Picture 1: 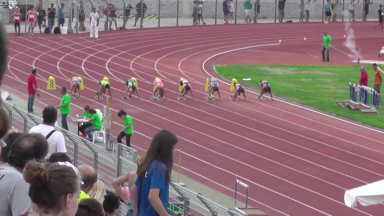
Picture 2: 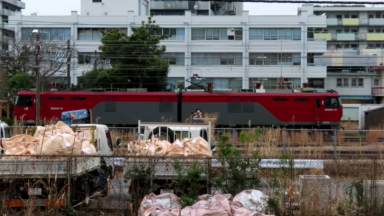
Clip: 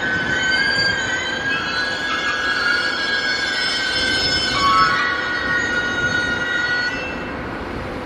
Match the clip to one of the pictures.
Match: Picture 2